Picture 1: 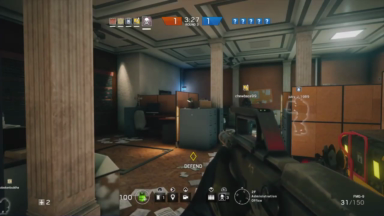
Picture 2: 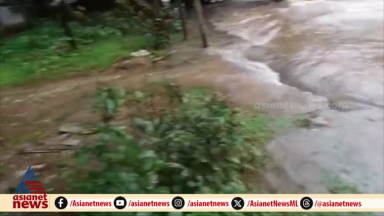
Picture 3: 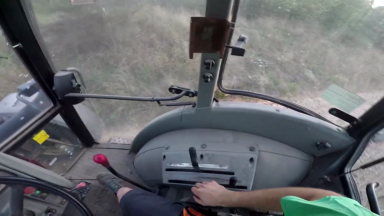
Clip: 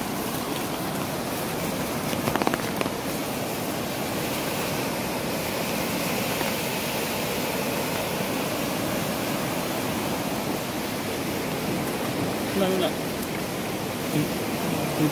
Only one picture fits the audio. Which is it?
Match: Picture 2